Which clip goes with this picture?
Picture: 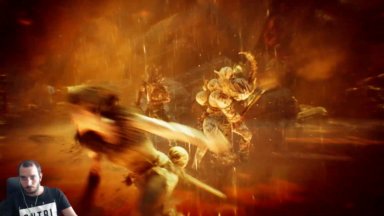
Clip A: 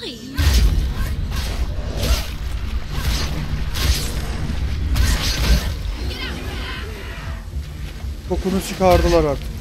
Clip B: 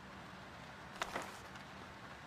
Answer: A